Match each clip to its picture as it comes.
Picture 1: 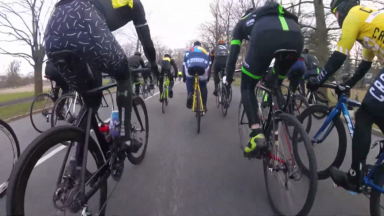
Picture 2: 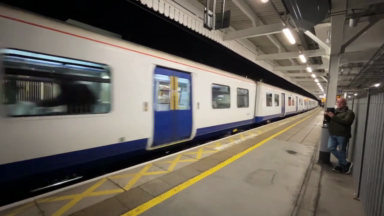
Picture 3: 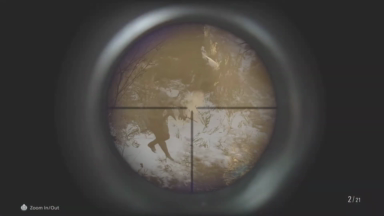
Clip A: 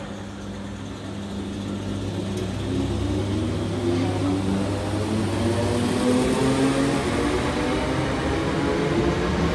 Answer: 2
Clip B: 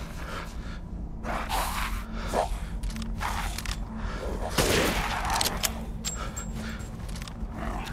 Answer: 3